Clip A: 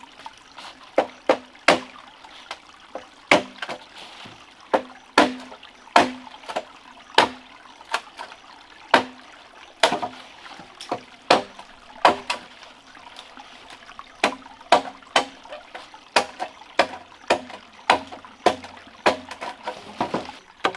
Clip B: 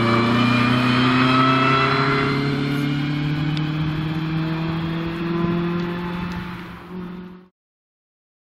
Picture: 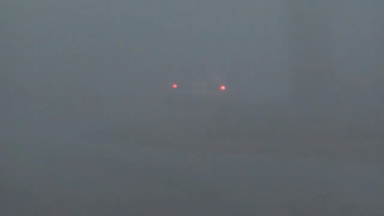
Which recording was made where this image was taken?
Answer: B